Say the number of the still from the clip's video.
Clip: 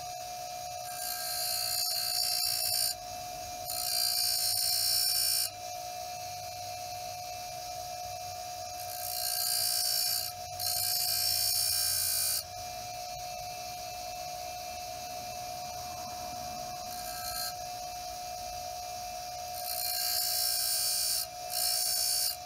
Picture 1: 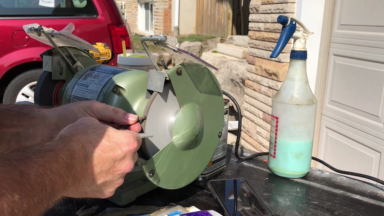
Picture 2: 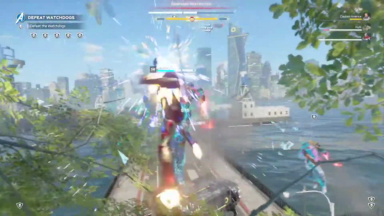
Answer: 1